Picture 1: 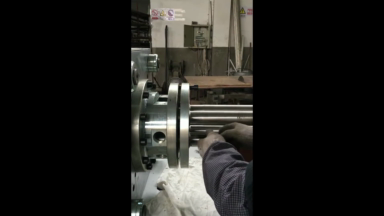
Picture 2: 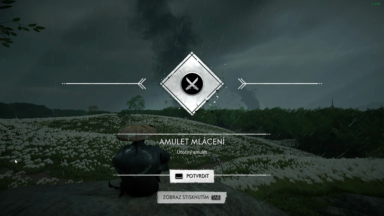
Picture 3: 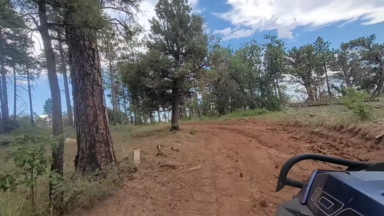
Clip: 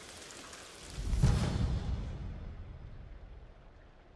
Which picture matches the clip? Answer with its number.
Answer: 2